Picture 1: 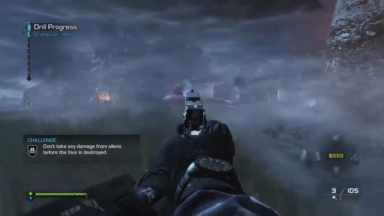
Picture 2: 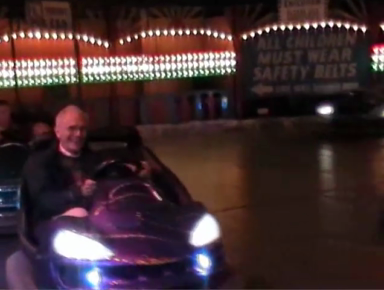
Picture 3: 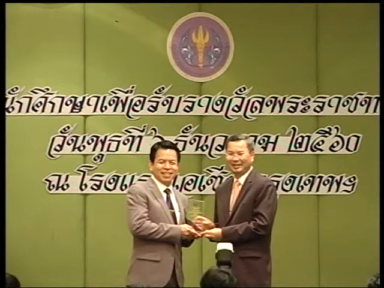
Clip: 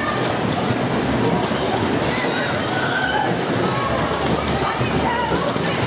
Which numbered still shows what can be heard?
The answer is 2